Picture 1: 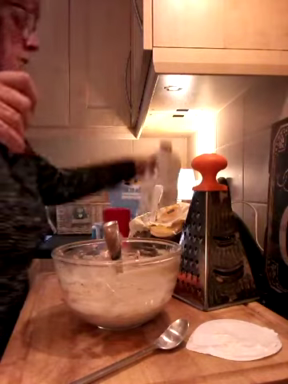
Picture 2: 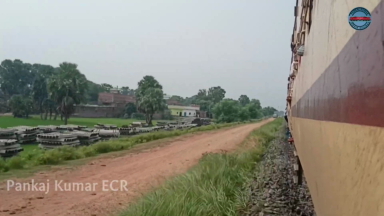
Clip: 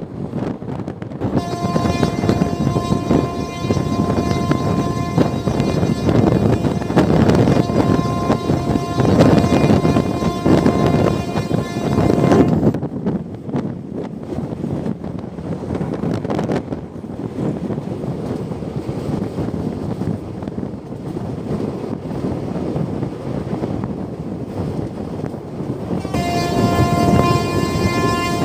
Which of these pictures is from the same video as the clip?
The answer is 2